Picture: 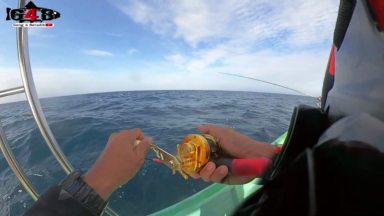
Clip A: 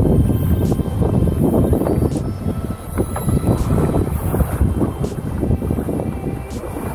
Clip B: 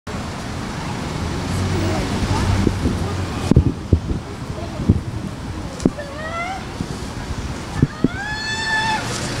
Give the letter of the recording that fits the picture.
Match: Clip A